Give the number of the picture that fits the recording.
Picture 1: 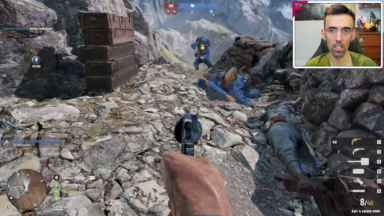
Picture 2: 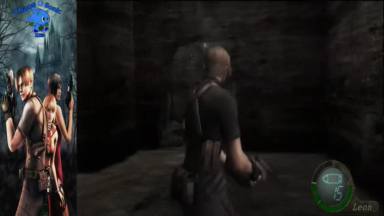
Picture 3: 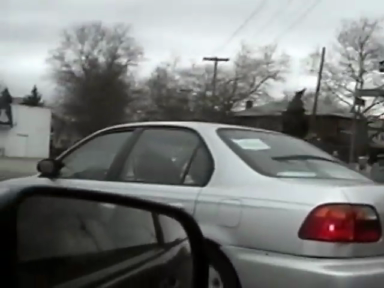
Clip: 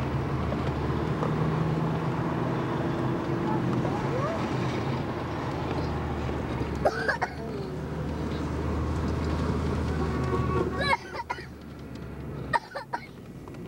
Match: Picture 3